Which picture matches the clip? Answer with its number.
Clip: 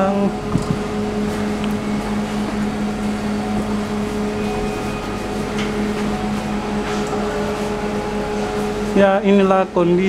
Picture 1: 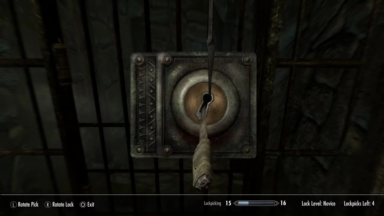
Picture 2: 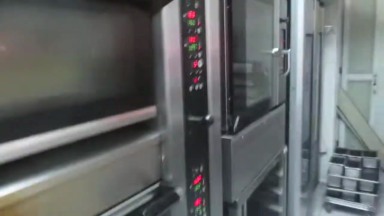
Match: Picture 2